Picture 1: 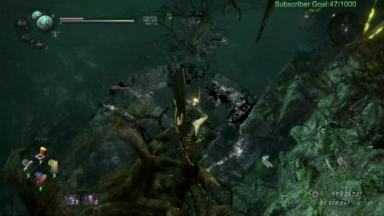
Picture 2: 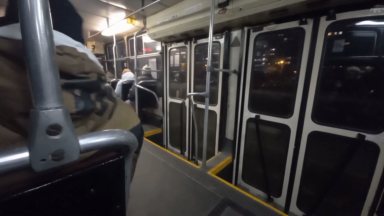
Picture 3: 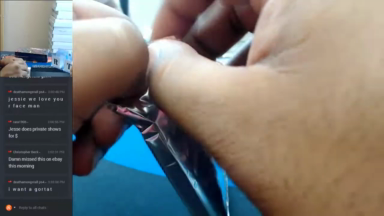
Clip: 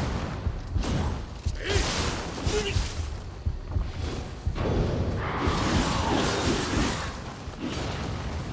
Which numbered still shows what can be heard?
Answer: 1